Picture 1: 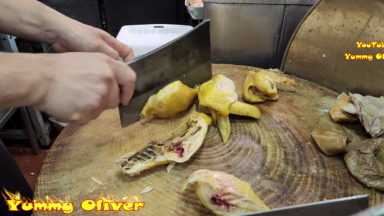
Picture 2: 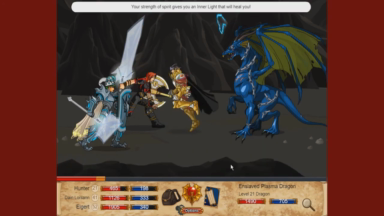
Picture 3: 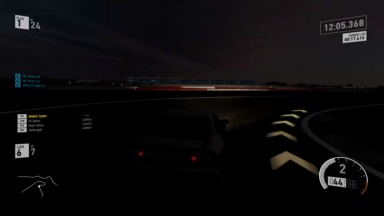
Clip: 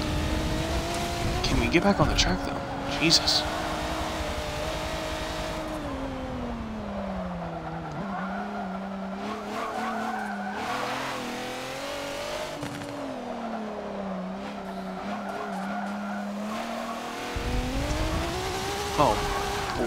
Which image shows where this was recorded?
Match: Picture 3